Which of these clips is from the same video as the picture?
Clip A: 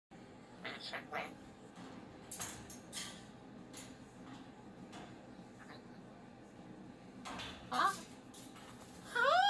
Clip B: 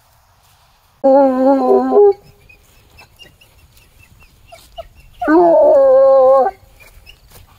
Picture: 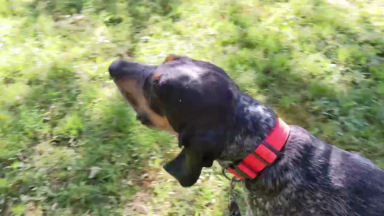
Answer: B